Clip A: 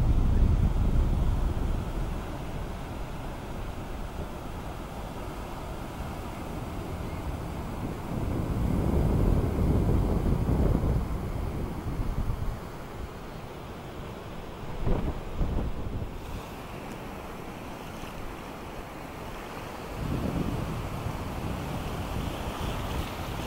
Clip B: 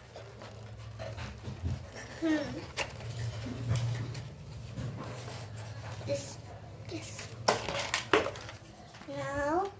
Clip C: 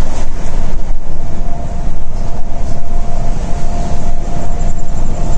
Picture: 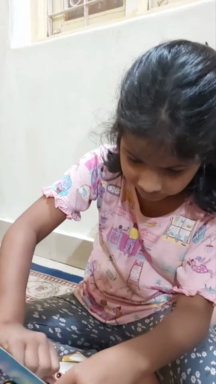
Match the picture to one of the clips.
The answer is B